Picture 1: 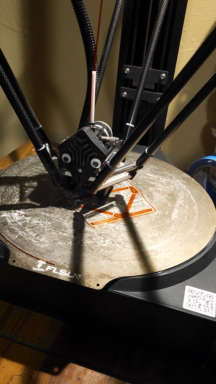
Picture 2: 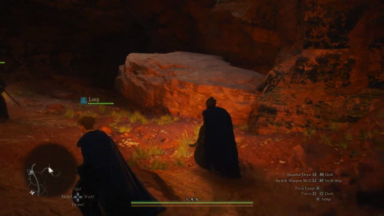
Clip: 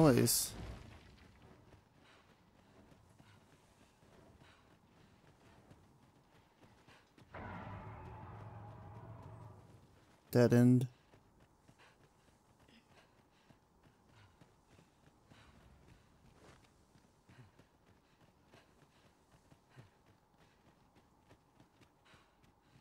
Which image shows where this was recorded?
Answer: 2